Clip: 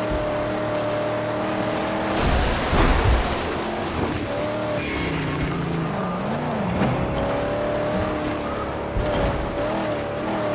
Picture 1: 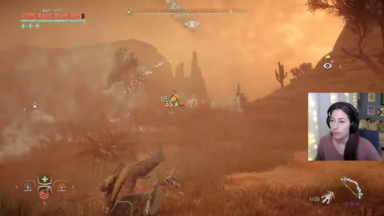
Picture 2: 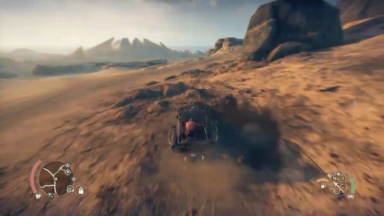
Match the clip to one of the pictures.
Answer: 2